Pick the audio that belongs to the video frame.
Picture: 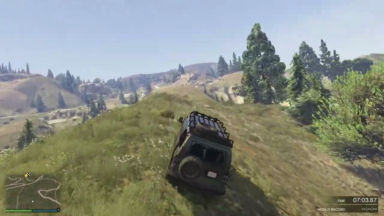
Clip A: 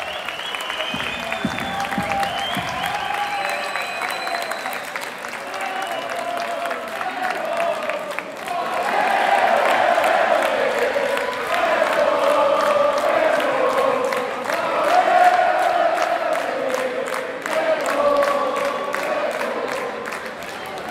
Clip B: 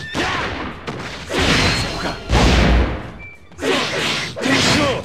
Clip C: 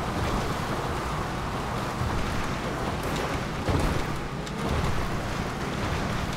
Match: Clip C